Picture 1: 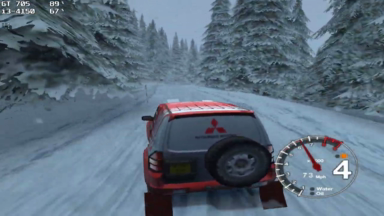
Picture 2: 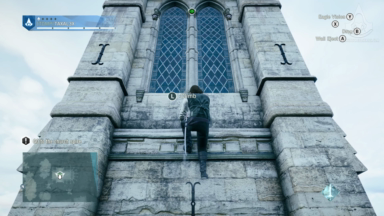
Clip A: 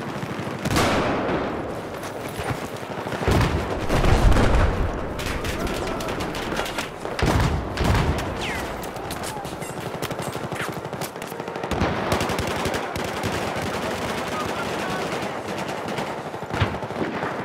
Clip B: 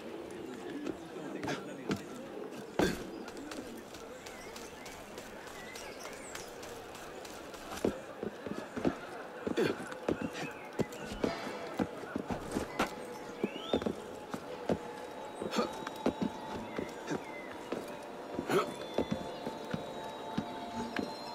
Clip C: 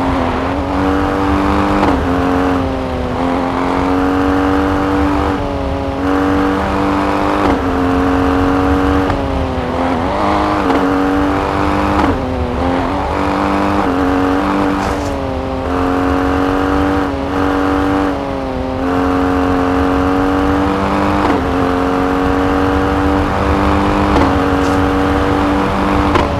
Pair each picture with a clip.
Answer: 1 C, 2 B